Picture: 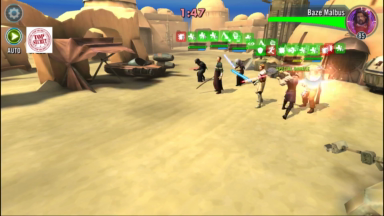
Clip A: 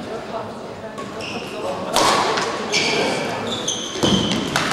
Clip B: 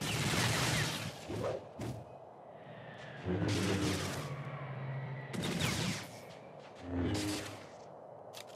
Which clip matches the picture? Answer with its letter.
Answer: B